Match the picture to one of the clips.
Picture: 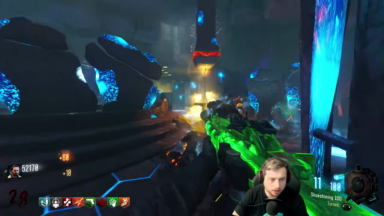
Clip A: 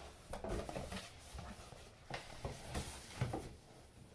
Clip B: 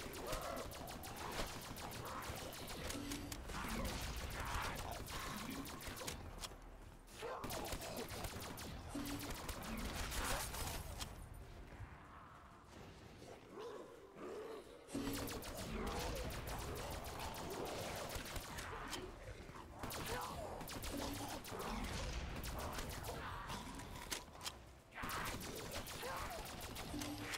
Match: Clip B